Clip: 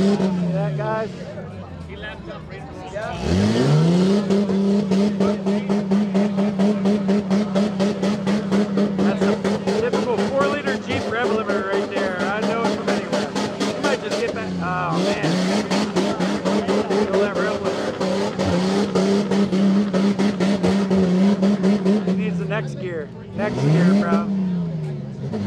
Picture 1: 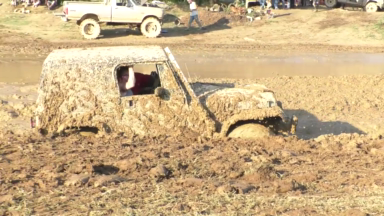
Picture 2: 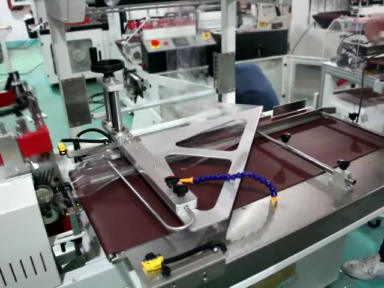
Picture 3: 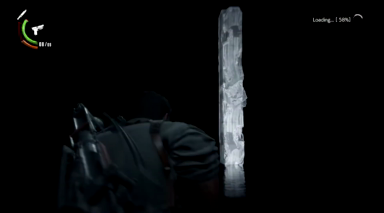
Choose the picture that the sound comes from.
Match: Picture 1